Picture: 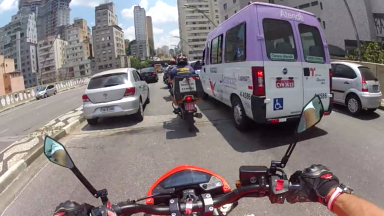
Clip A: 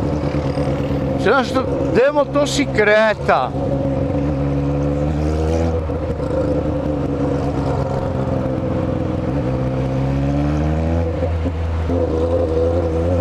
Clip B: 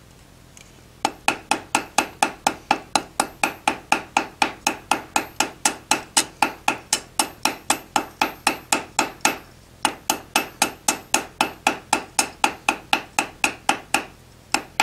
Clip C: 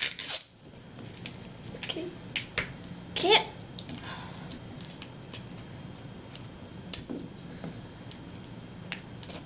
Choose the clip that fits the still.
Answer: A